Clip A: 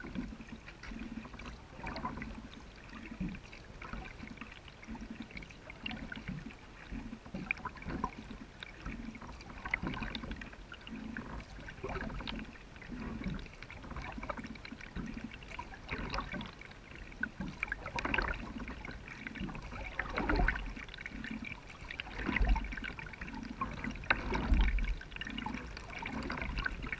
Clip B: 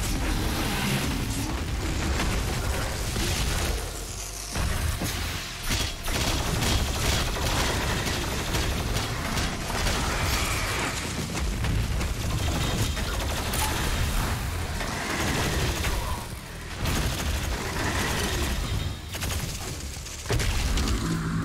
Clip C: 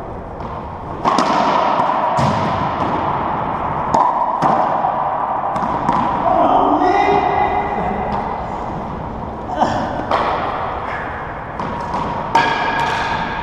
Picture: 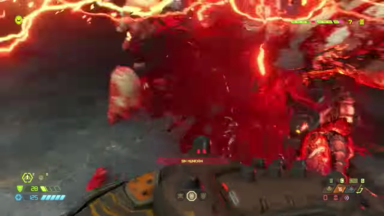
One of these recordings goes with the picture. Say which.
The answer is B